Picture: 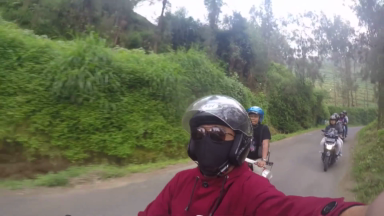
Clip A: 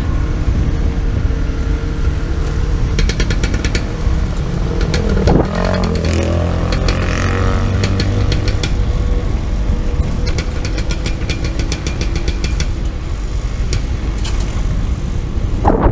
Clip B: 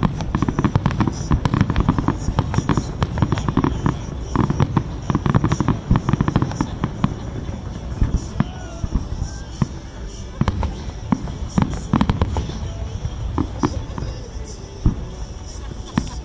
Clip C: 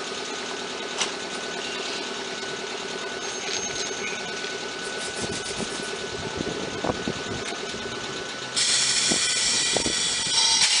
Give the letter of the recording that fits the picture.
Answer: A